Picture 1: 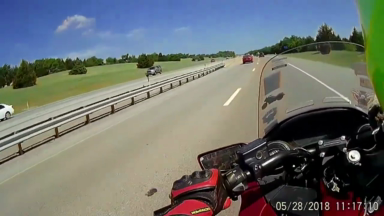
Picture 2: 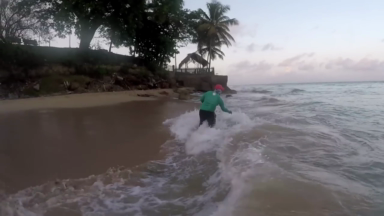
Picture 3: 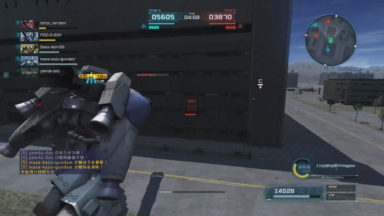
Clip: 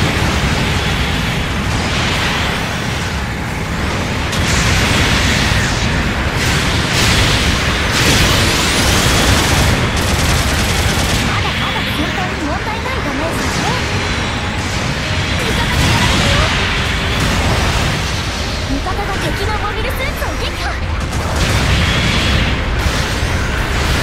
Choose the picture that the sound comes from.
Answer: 3